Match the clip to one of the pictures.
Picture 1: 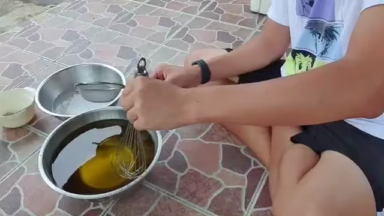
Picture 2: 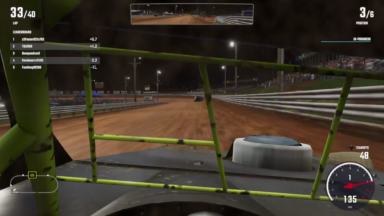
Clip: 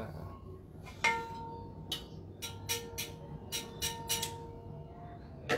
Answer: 1